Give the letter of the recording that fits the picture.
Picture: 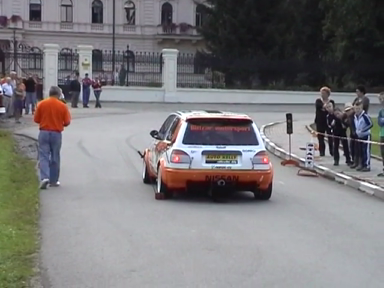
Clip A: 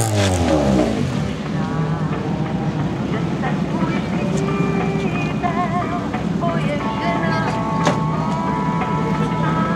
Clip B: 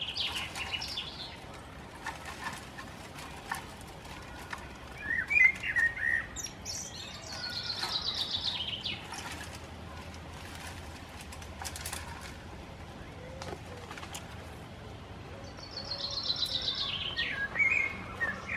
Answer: A